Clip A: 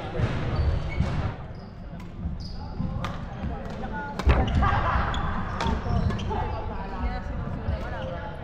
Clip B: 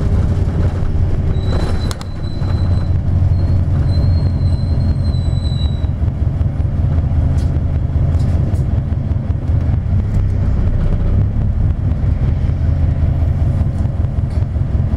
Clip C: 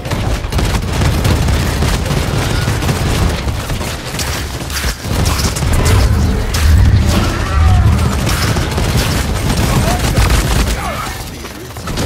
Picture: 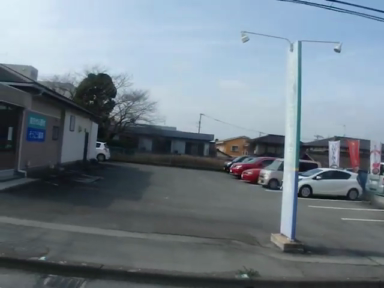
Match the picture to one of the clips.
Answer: B